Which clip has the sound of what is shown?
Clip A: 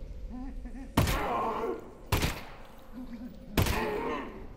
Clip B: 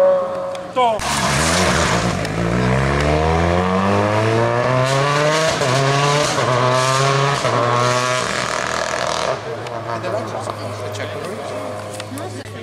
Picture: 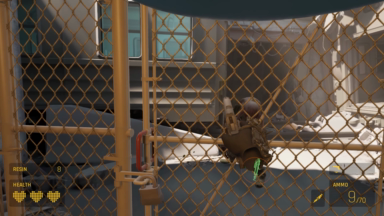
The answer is A